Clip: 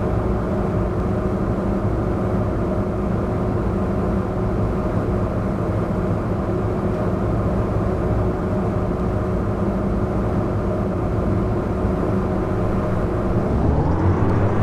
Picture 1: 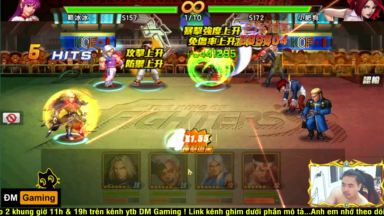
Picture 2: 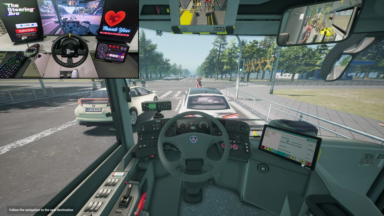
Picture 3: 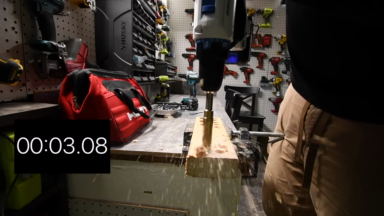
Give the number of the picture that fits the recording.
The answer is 2